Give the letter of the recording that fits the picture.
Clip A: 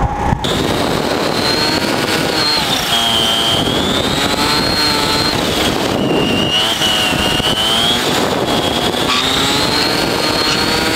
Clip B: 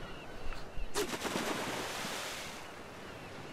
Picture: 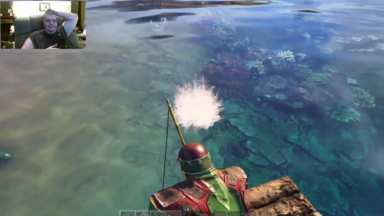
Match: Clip B